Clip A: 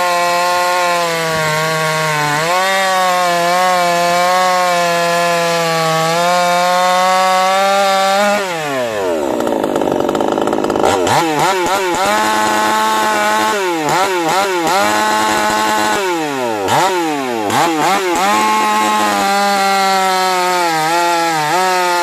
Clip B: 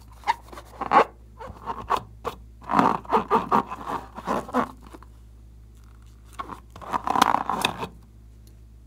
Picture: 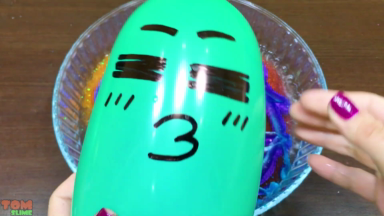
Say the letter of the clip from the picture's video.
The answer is B